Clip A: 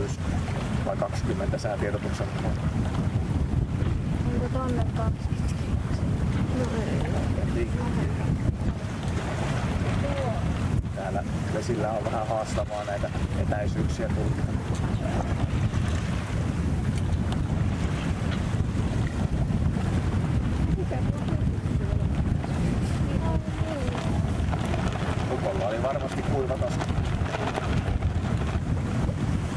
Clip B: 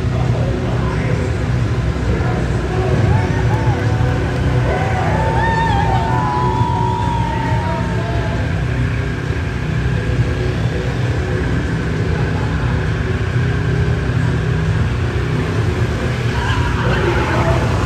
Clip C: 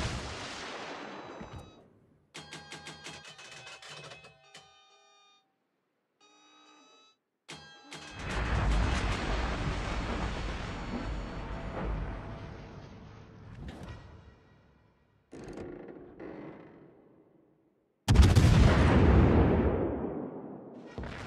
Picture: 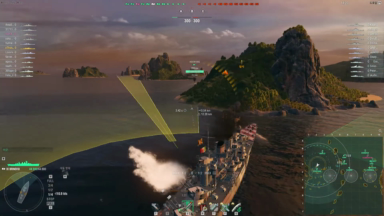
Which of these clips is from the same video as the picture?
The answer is C